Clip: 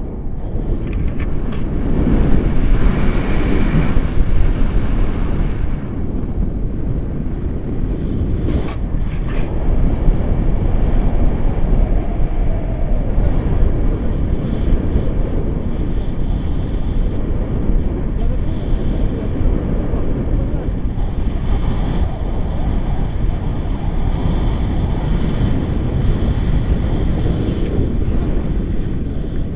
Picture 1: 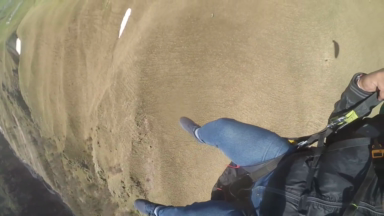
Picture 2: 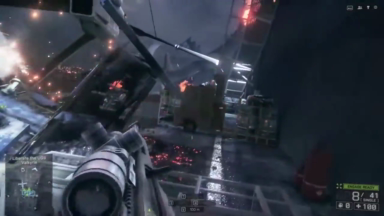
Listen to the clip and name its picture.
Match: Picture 1